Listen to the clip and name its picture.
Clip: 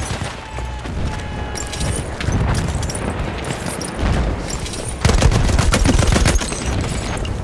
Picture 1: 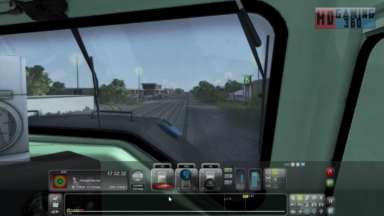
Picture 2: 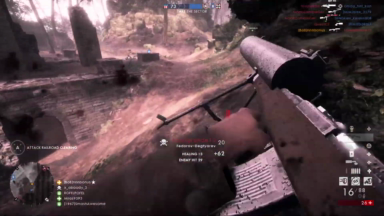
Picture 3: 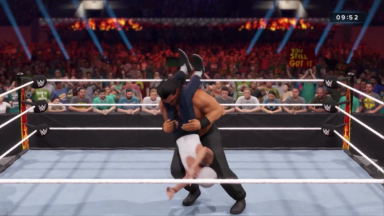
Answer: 2